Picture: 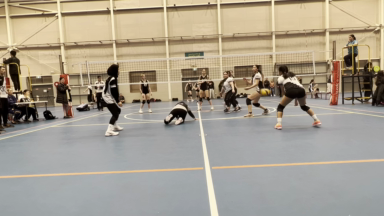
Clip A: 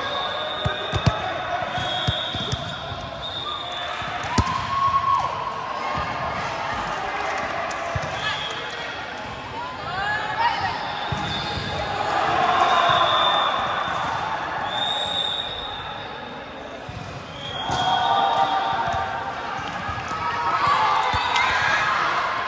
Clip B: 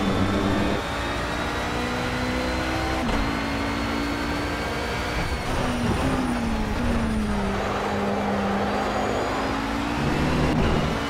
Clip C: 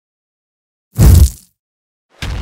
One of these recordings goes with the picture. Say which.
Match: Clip A